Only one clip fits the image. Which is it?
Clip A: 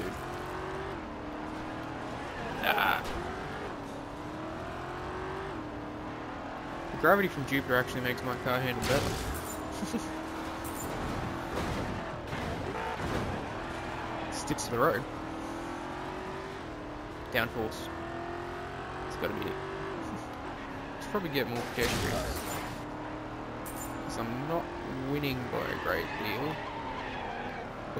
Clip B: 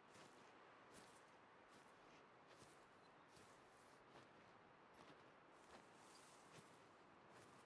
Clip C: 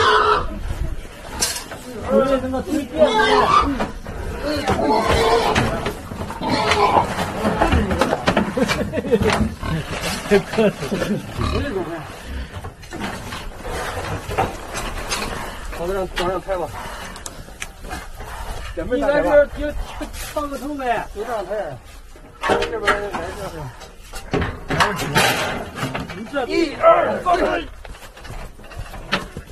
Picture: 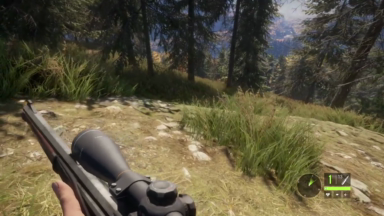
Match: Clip B